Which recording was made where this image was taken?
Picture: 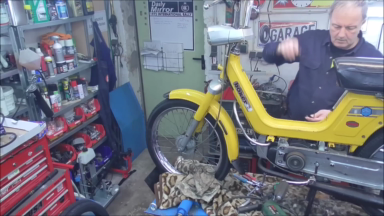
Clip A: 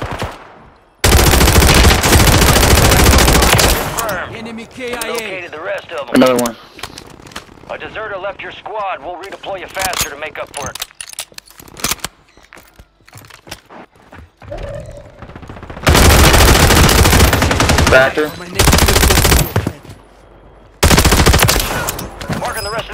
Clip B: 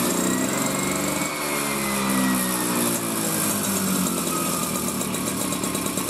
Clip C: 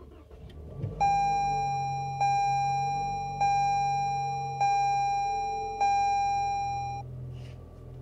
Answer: B